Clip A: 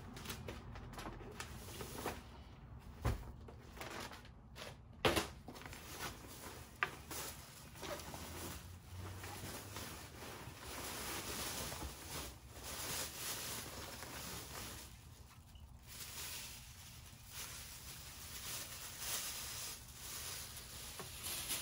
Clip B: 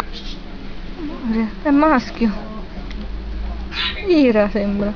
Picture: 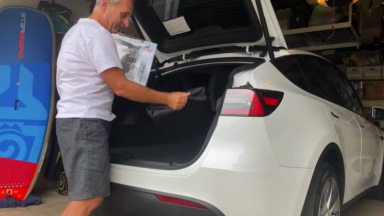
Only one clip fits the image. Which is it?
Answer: A